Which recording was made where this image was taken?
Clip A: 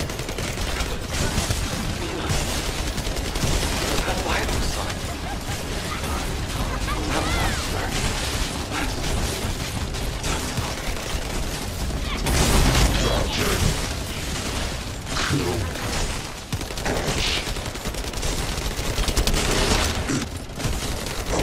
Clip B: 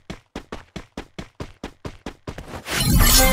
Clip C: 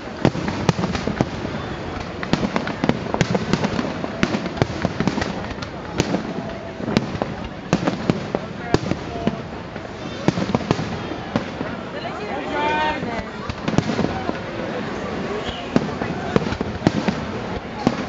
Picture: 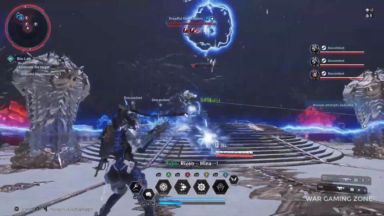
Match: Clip A